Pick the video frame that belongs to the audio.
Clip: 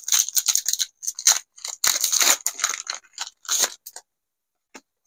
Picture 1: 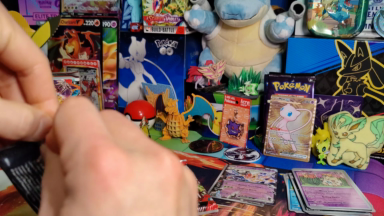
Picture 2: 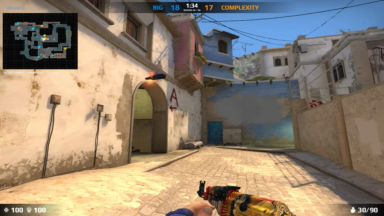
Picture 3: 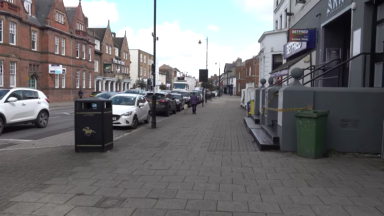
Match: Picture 1